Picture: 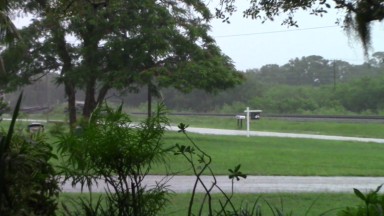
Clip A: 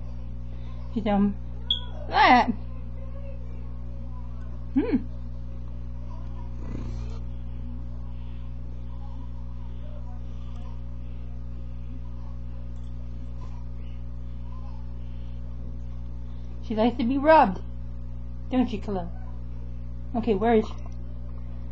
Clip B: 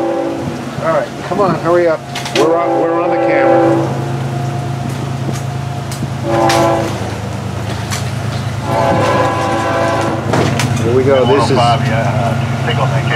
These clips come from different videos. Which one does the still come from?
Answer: B